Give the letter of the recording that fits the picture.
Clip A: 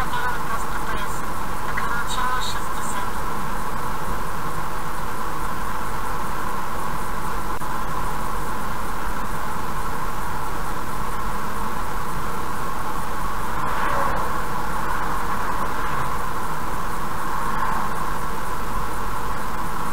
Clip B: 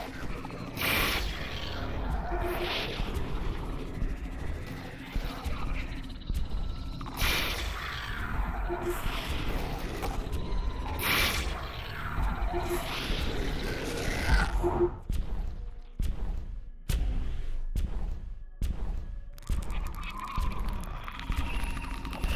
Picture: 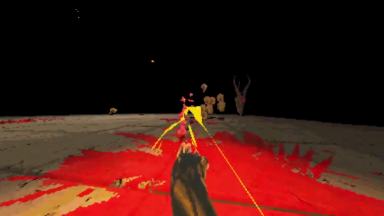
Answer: B